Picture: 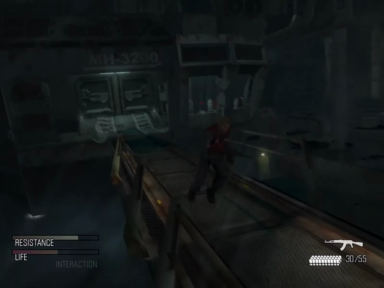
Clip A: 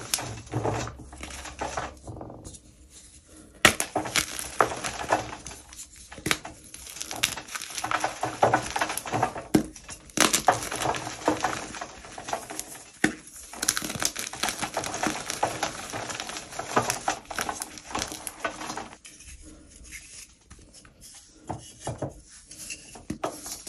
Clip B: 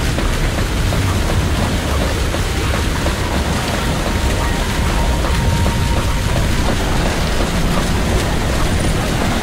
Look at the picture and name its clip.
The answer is B